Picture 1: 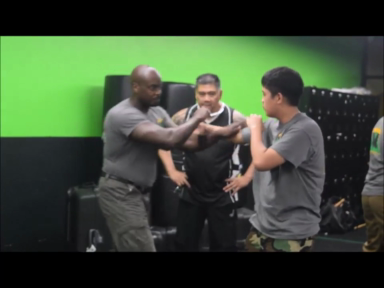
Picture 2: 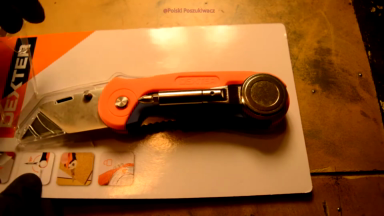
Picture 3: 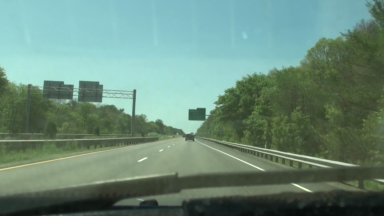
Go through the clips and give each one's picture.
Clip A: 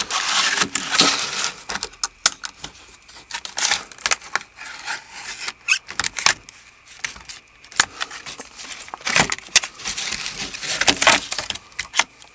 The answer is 2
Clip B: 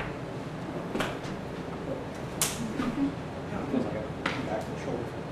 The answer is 1